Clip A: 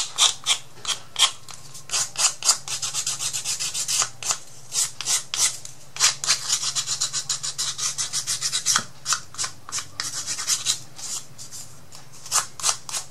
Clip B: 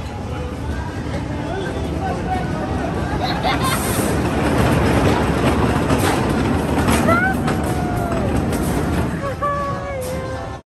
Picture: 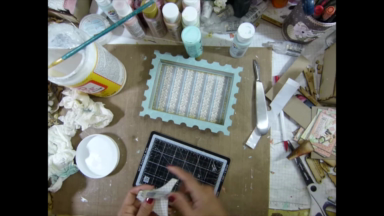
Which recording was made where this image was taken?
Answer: A